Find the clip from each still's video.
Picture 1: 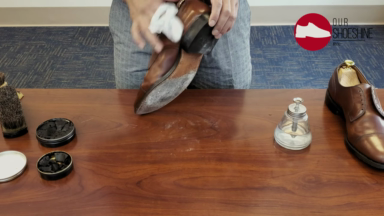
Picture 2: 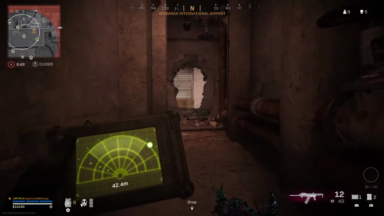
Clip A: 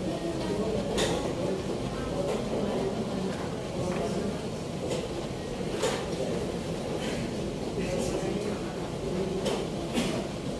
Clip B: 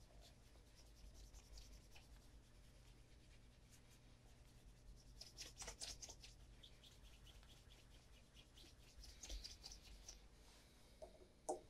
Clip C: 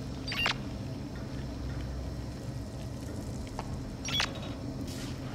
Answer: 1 B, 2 C